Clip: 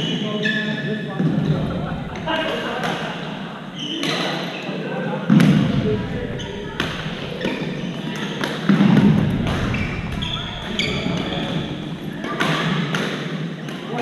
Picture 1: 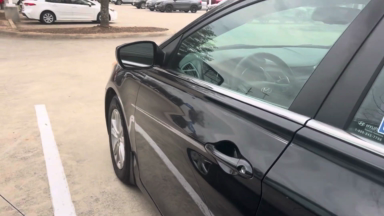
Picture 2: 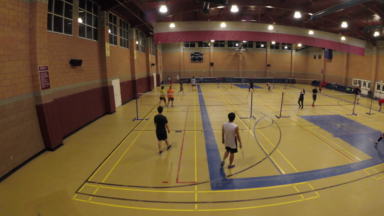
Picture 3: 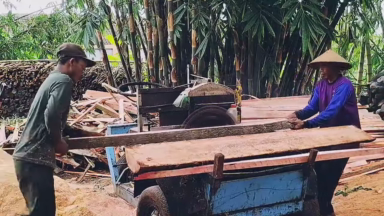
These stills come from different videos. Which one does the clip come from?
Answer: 2